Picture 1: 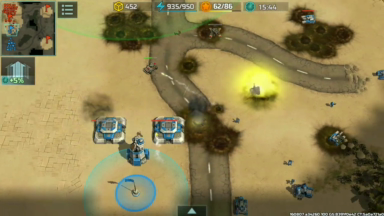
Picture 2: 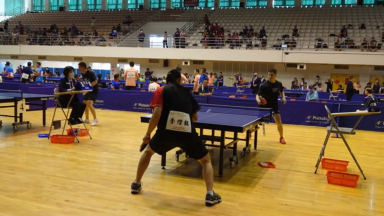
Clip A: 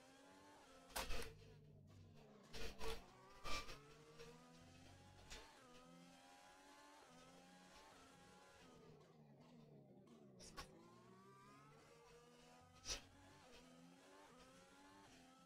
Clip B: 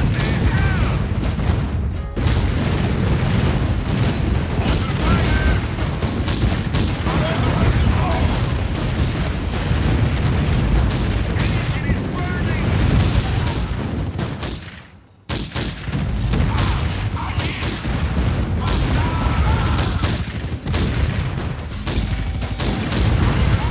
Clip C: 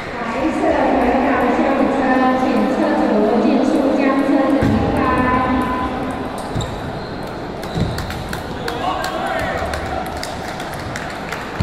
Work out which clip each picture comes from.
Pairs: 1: B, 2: C